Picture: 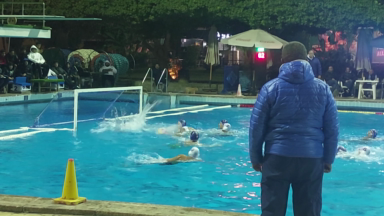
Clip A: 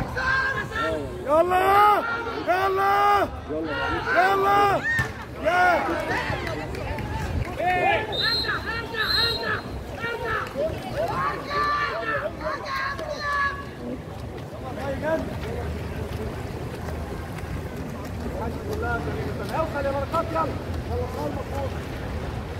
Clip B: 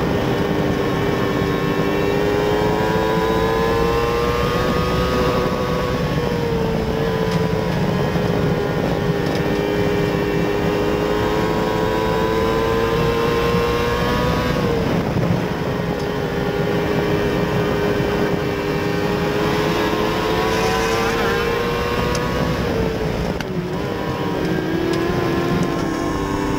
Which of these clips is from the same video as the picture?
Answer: A